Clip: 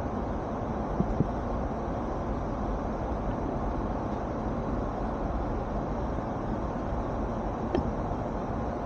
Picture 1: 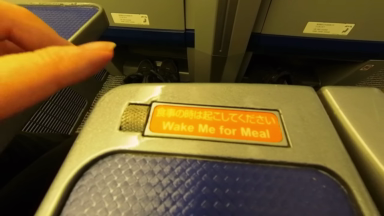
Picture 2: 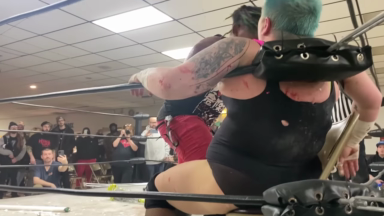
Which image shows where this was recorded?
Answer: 1